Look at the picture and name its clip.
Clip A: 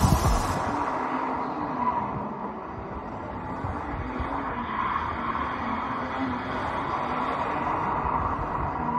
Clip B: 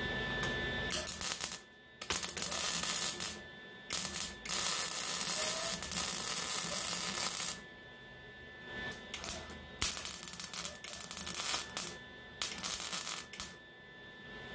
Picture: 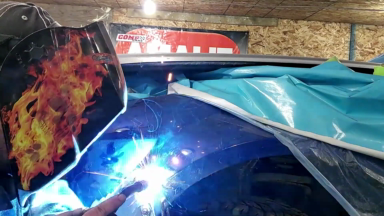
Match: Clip B